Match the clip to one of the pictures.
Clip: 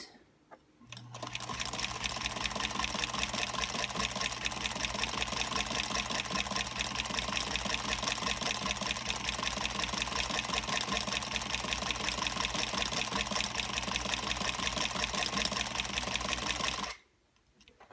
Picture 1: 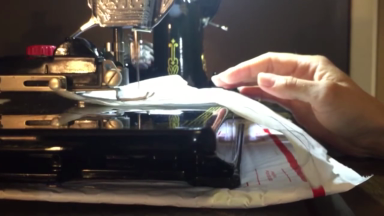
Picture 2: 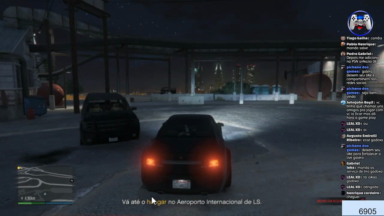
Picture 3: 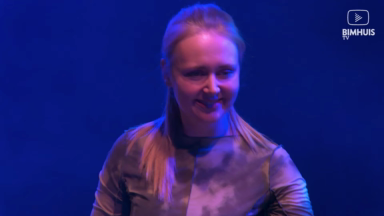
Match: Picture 1